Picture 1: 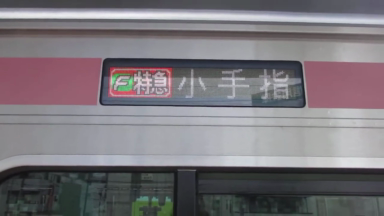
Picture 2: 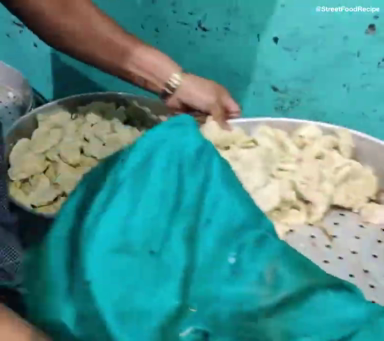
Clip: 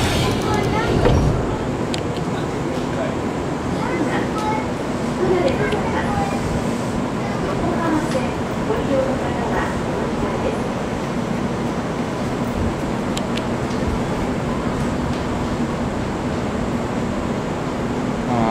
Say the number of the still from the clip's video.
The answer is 1